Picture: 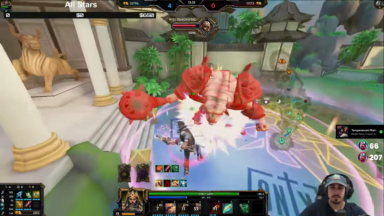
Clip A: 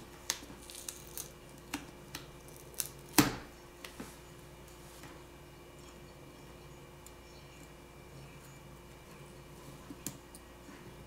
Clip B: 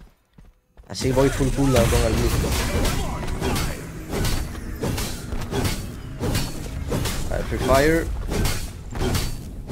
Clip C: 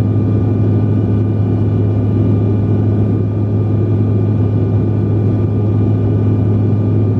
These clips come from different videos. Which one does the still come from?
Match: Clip B